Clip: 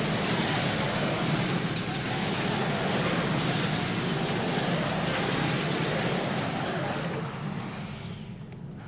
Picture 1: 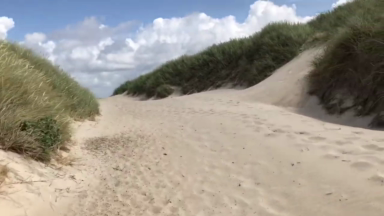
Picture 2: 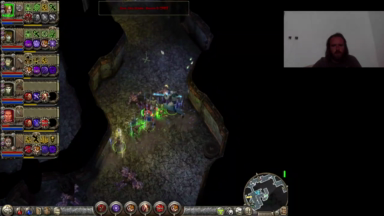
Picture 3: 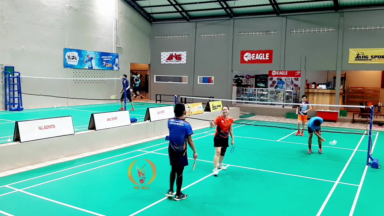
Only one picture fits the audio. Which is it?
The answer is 2